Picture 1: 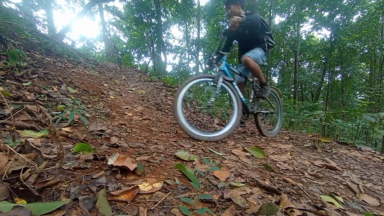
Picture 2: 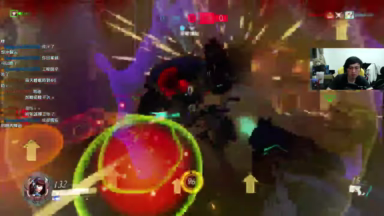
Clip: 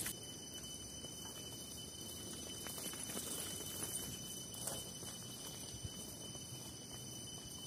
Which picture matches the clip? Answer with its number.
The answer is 1